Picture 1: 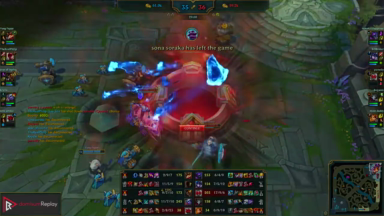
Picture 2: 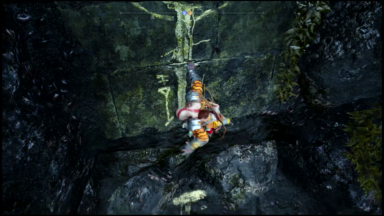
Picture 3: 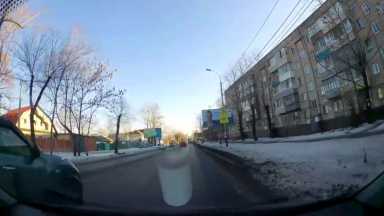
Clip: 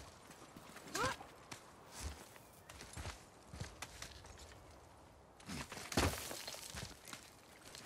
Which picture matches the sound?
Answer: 2